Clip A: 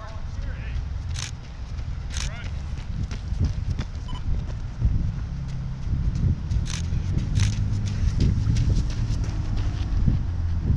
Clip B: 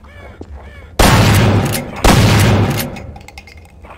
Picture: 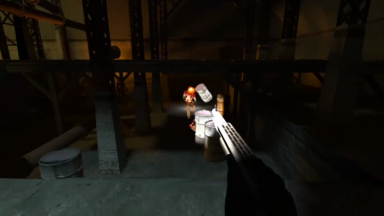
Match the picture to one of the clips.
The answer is B